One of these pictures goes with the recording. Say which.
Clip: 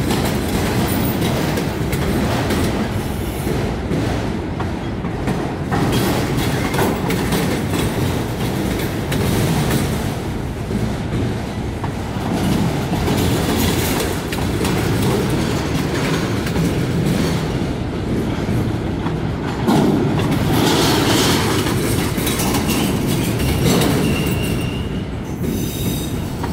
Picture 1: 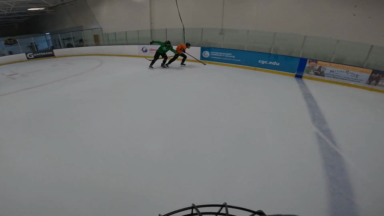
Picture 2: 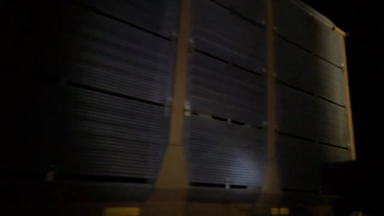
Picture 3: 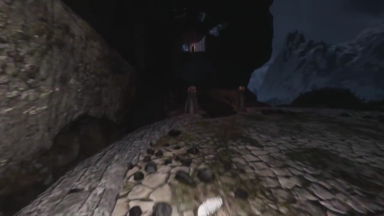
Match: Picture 2